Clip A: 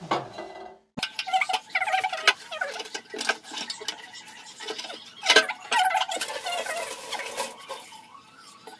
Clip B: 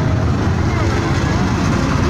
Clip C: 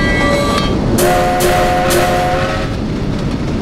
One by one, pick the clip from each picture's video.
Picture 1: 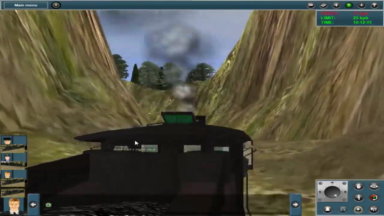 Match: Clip C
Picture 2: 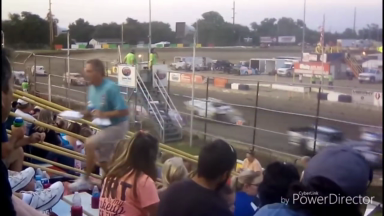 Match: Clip B